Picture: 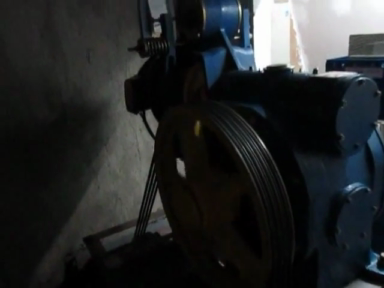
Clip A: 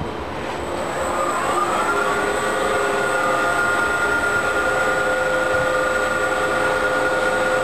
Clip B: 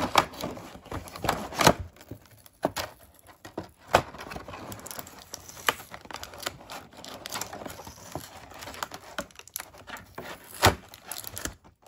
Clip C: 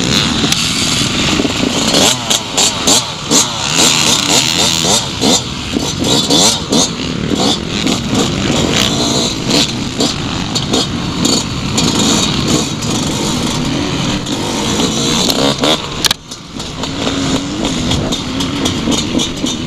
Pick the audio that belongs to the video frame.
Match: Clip A